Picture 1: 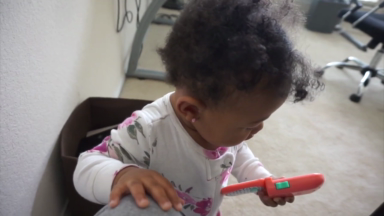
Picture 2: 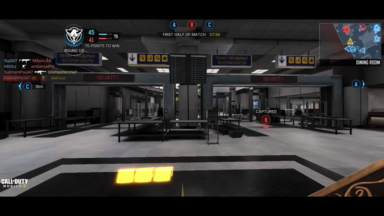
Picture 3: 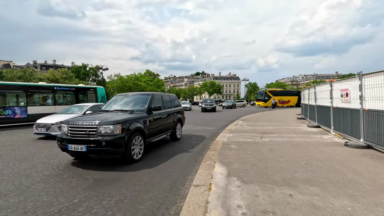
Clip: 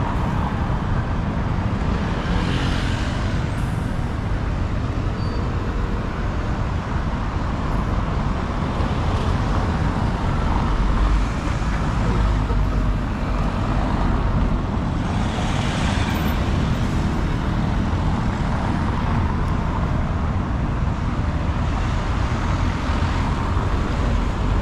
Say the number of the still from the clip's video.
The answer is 3